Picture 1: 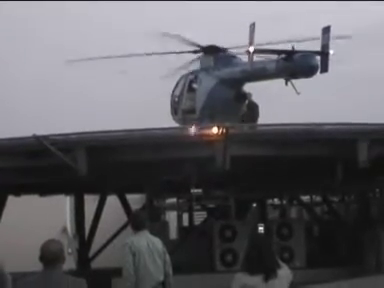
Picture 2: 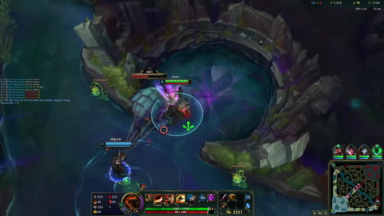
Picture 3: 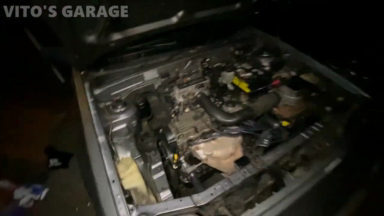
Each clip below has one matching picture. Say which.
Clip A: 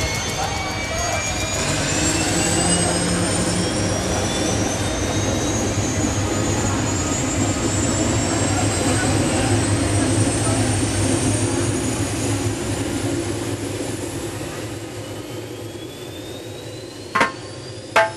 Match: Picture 1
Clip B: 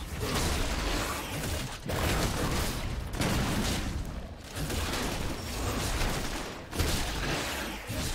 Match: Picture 2